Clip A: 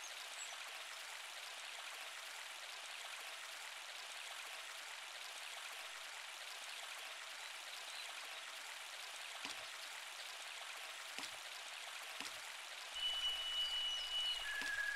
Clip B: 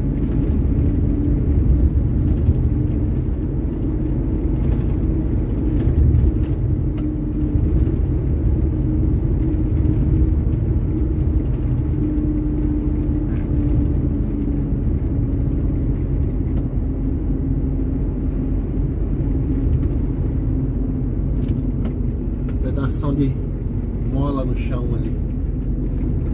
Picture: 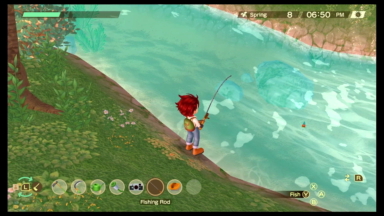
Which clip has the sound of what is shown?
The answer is A